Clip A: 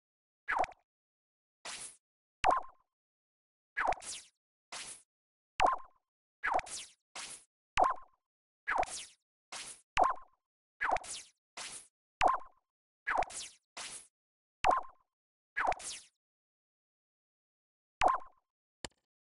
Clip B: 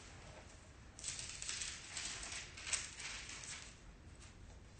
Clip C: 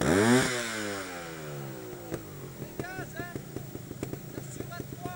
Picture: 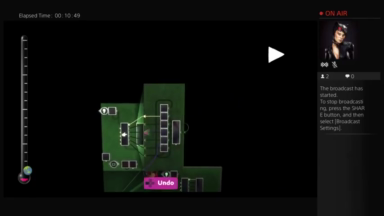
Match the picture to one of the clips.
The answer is A